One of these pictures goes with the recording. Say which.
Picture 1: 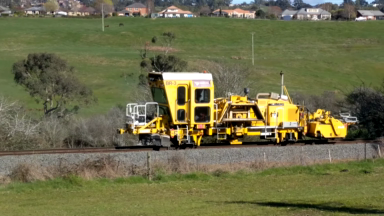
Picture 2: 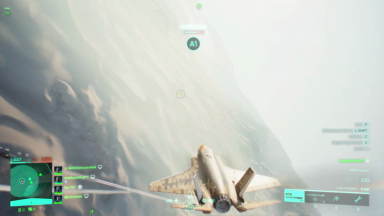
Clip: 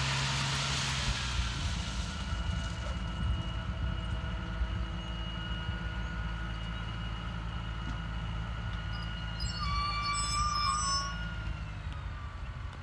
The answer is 1